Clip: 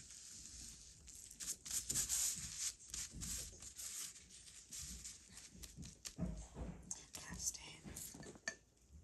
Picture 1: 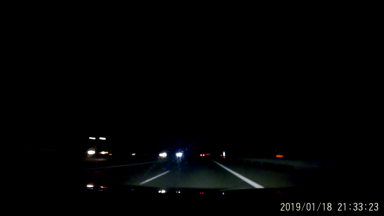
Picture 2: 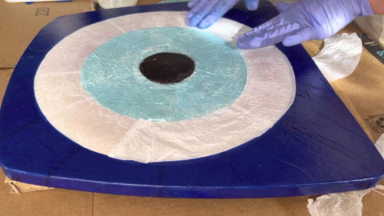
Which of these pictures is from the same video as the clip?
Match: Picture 2